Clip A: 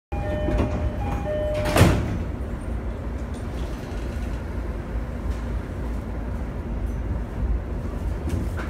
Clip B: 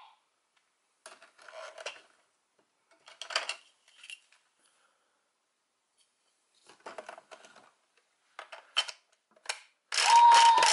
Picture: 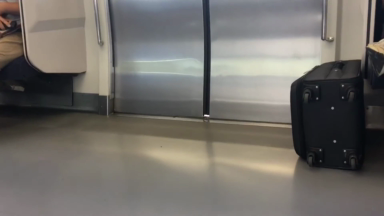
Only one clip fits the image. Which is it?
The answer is A